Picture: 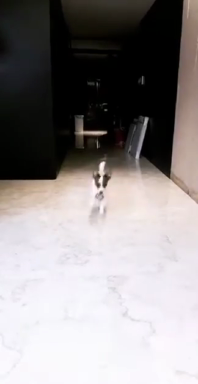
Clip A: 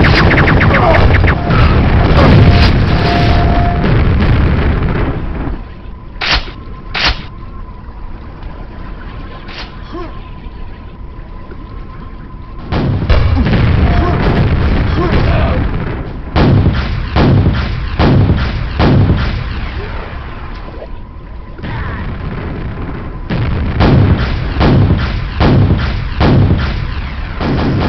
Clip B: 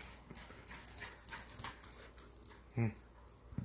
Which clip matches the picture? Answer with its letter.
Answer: B